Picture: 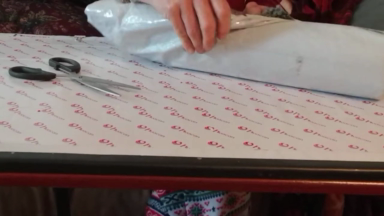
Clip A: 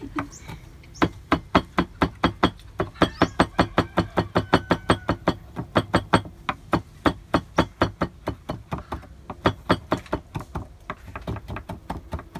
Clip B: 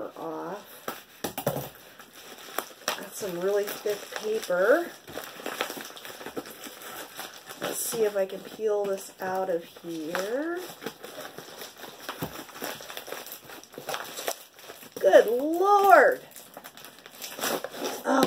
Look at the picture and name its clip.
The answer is B